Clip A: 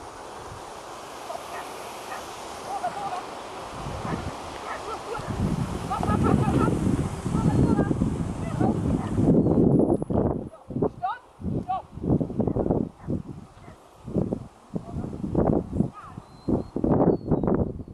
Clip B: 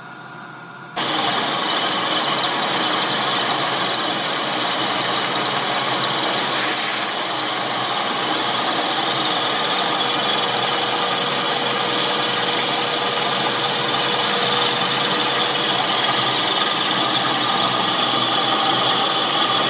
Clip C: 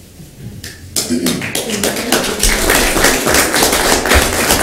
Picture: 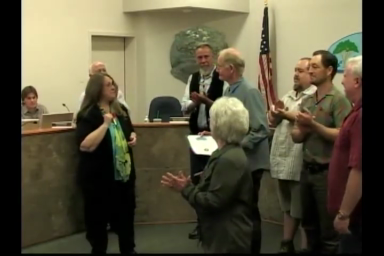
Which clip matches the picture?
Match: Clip C